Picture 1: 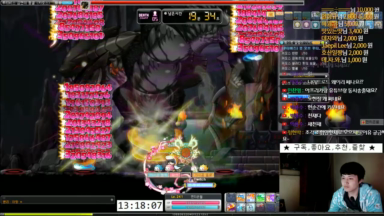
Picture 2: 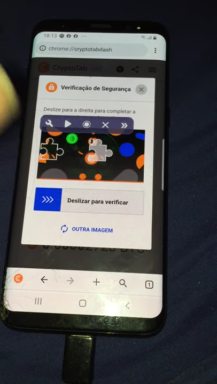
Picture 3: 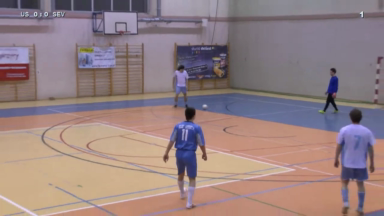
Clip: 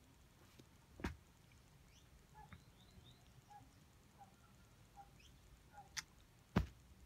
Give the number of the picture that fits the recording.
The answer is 2